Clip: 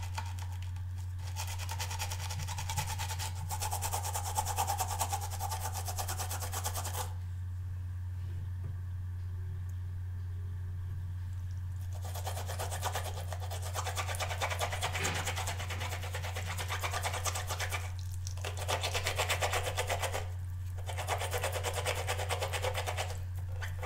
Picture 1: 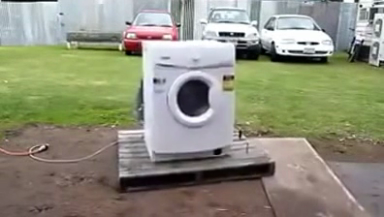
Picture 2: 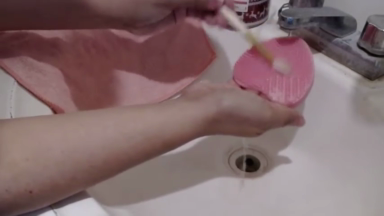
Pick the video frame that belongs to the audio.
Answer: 2